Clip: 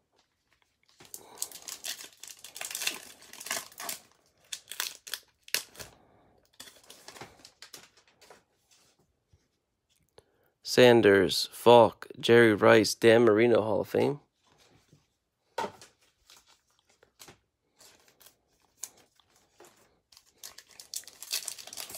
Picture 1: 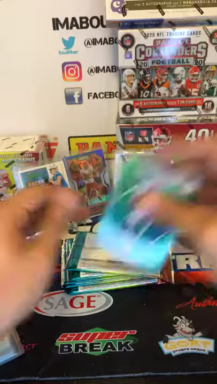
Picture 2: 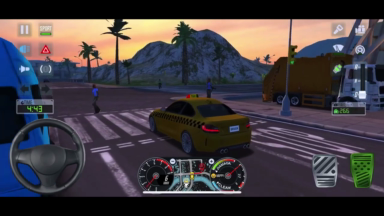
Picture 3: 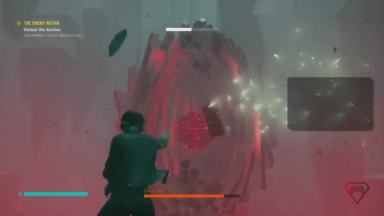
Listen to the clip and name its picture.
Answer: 1